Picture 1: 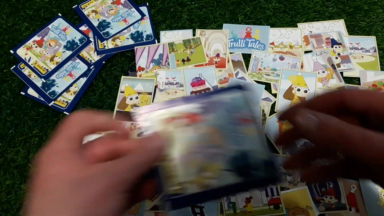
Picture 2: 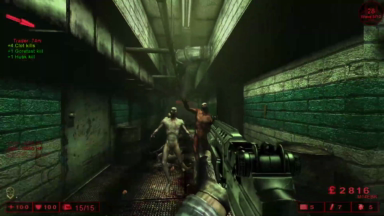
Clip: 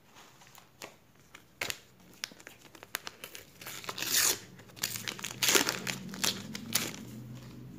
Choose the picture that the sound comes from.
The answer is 1